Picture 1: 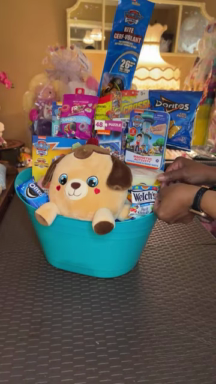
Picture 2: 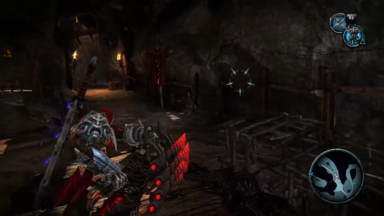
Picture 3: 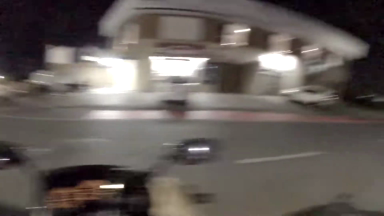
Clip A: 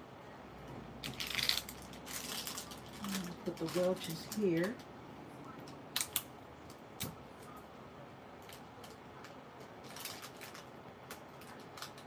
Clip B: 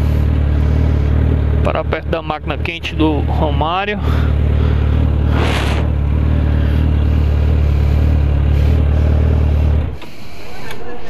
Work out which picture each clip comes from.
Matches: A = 1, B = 3